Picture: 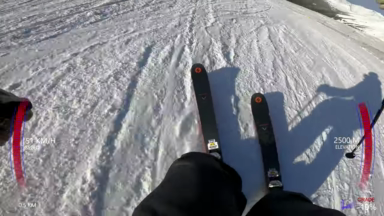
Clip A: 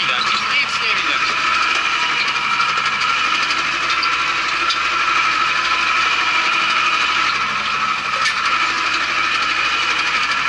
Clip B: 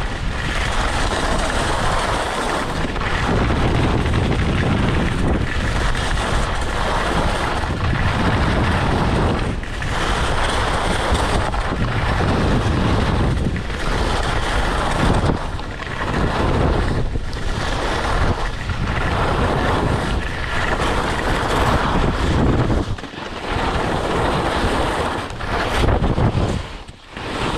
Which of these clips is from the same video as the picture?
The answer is B